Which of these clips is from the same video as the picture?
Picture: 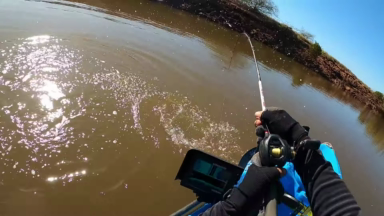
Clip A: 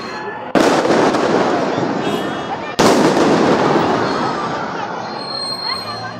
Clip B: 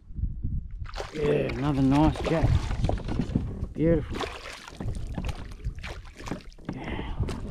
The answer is B